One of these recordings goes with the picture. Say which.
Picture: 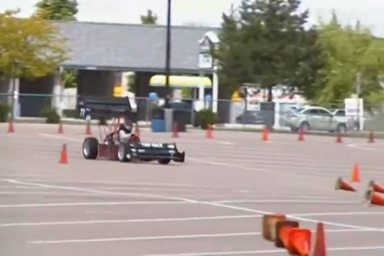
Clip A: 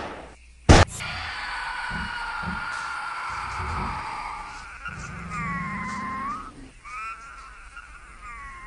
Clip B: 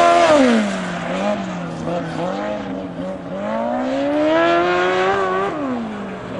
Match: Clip B